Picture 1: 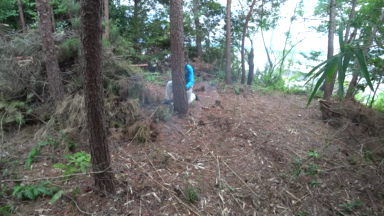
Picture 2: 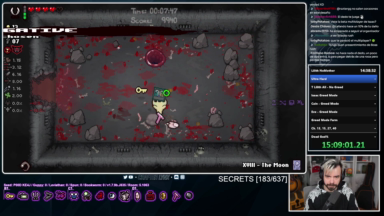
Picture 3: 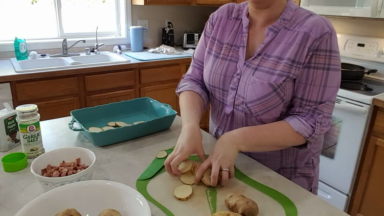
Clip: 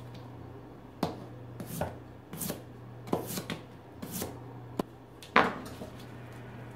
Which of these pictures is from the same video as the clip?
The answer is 3